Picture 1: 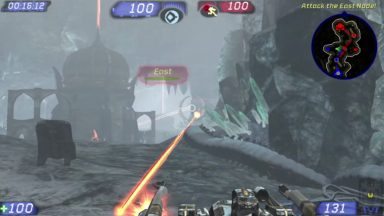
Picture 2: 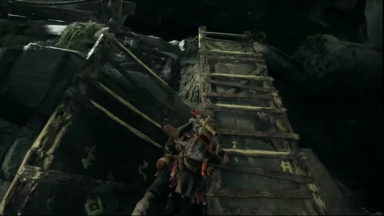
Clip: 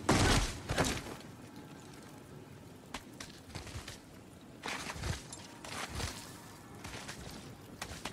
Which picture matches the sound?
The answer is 2